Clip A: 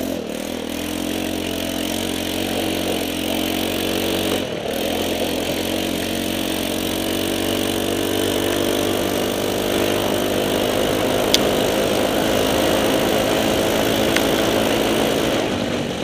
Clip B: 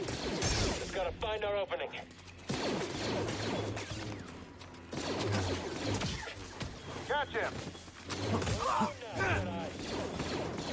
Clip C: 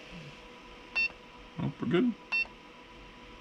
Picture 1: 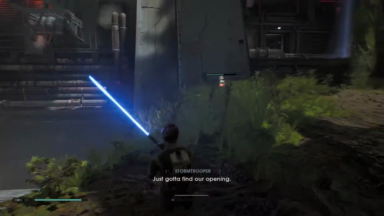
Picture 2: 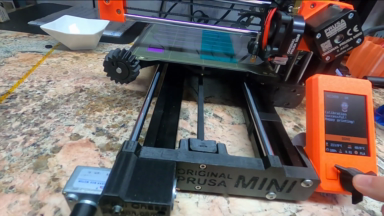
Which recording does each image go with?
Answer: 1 B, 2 C